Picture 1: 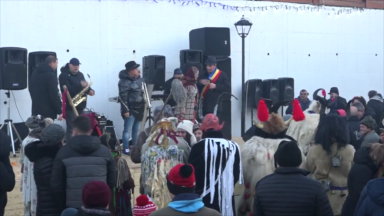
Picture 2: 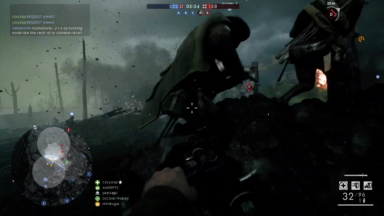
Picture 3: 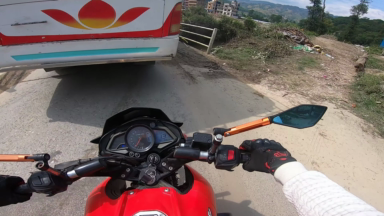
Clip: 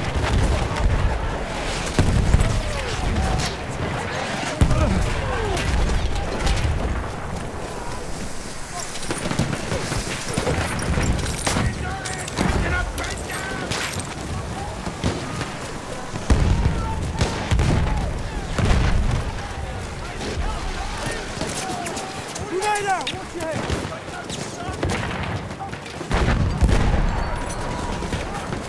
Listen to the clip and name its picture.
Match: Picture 2